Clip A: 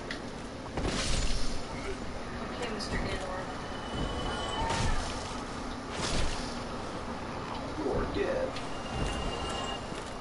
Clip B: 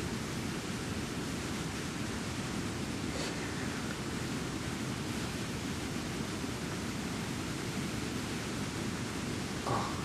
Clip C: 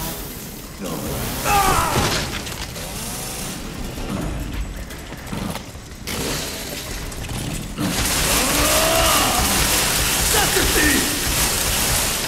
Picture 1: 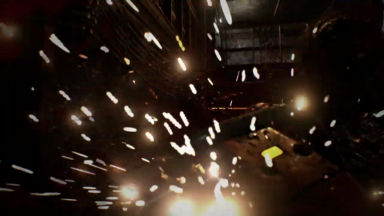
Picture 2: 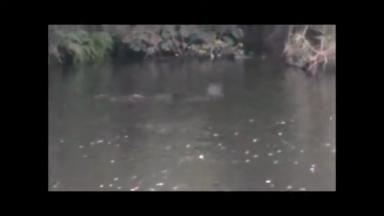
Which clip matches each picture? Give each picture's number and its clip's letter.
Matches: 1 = C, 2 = B